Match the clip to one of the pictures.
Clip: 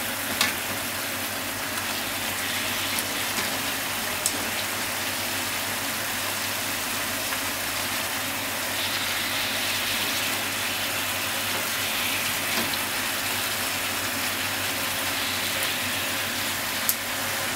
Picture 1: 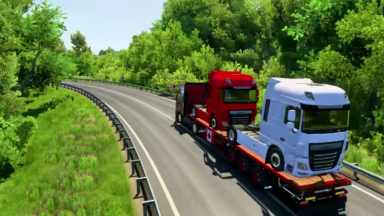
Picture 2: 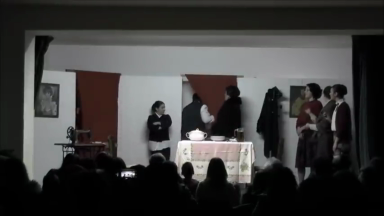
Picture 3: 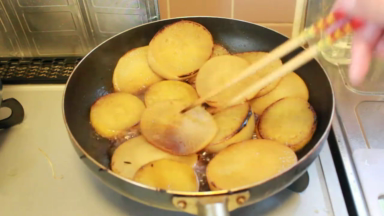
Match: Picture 3